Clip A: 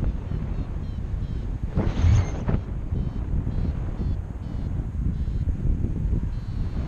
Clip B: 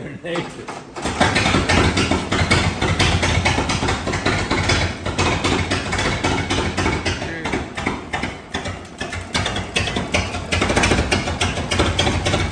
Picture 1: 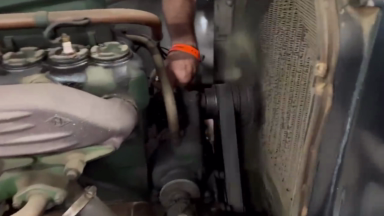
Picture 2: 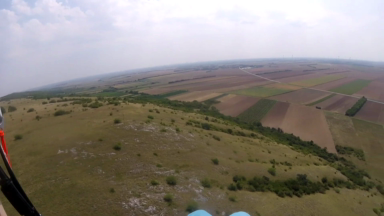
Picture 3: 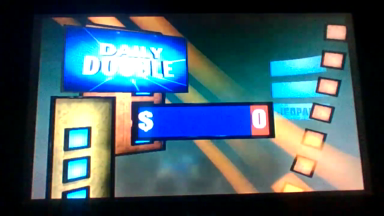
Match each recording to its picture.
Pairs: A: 2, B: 1